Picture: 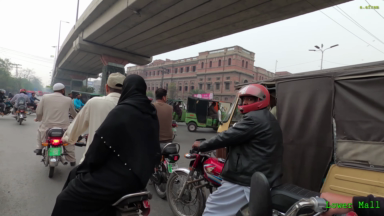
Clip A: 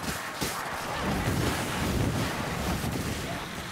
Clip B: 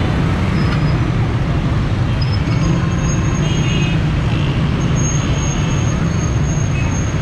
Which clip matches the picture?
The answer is B